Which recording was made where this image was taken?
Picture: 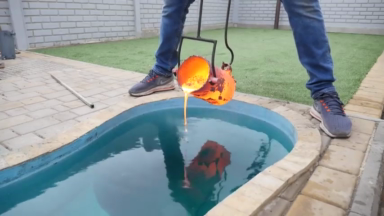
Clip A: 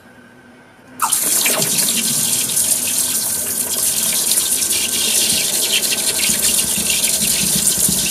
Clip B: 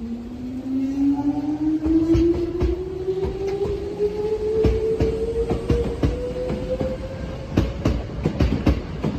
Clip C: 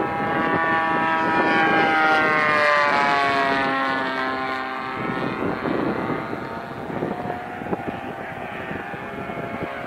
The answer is A